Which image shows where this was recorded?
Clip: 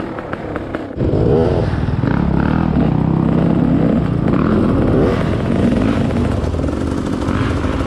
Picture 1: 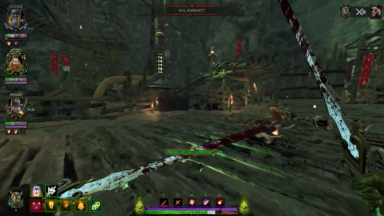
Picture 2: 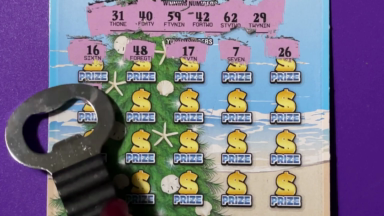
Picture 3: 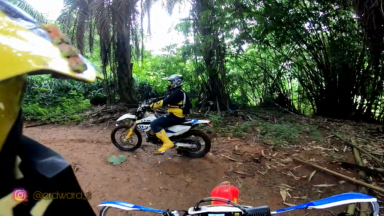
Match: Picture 3